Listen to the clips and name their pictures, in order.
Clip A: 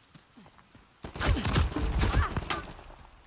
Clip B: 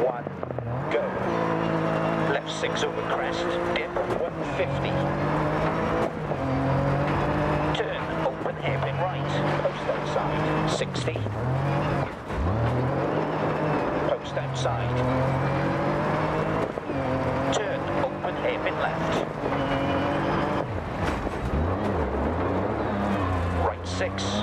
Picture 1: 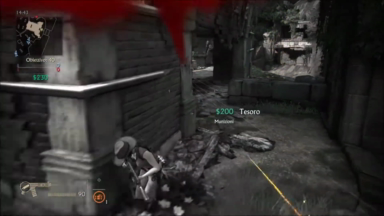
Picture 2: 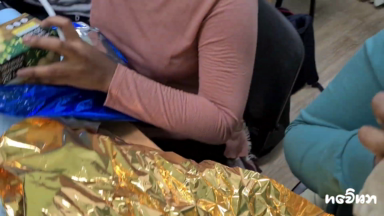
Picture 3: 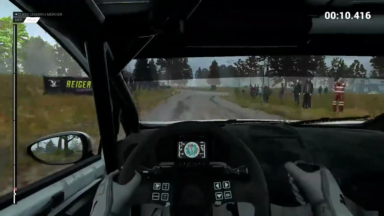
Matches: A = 1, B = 3